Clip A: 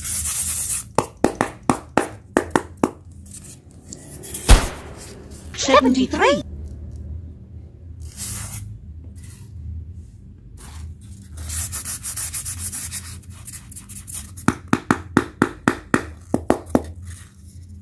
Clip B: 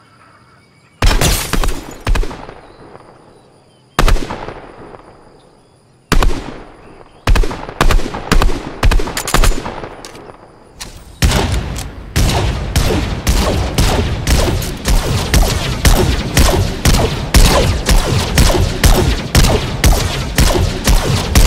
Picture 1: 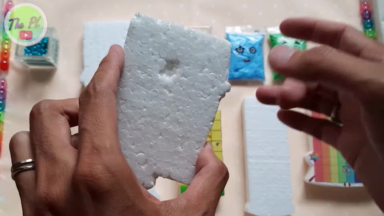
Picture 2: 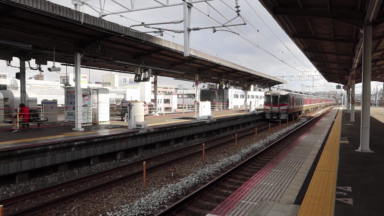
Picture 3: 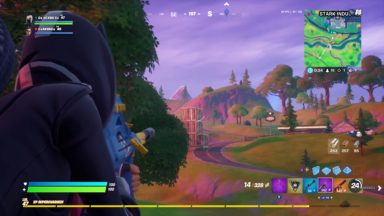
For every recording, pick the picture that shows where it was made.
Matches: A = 1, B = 3